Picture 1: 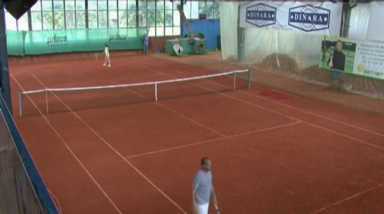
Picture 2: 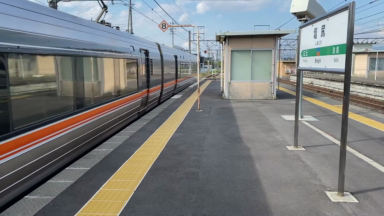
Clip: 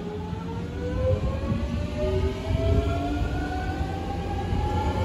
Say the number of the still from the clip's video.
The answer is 2